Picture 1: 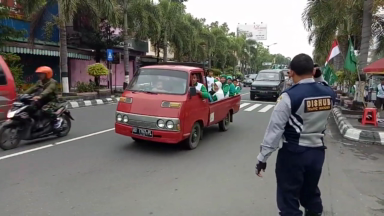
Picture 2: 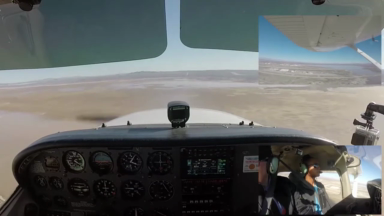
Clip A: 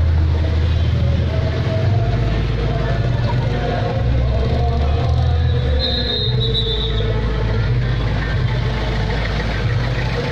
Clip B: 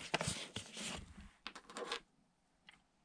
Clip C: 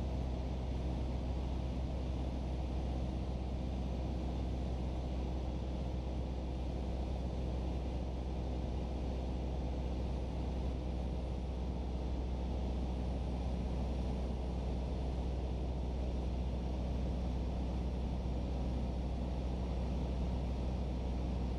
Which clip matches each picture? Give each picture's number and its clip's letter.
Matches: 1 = A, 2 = C